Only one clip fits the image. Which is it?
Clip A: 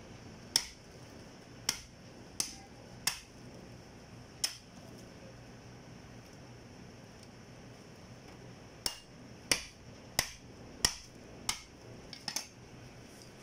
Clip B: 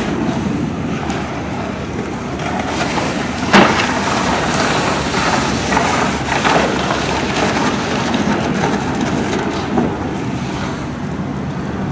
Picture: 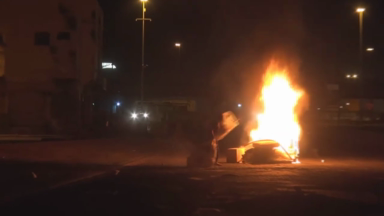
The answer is B